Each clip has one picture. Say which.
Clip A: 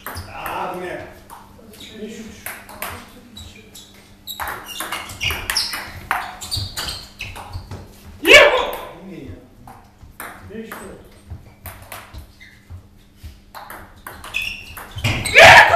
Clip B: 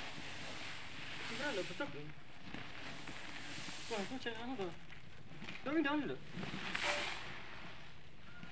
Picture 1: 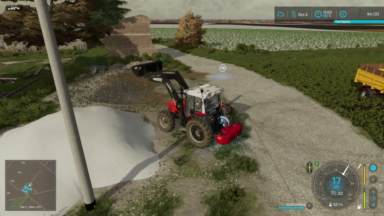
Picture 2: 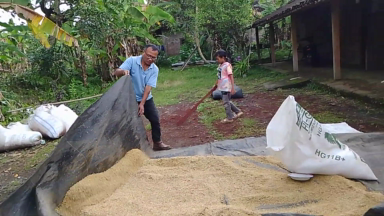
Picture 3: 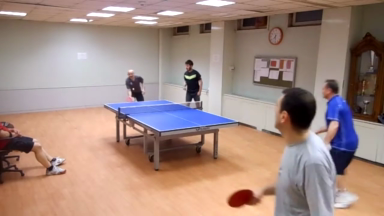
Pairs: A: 3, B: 2